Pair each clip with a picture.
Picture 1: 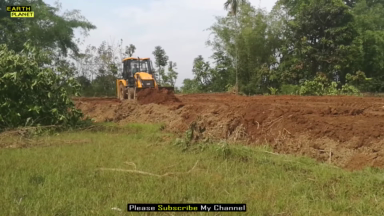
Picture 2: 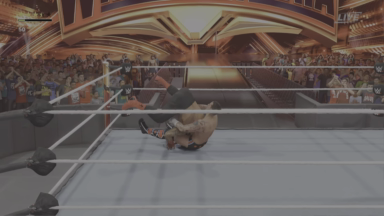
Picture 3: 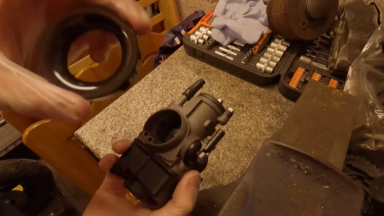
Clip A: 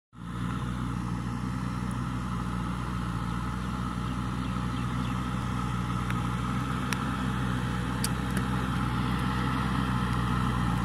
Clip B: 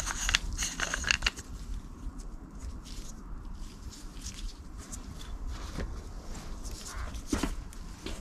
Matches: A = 1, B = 3